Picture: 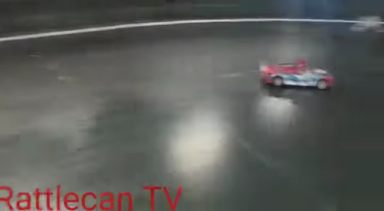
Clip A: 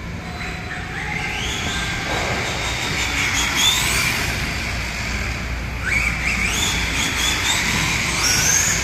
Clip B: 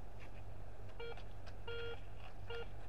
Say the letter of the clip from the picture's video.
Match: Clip A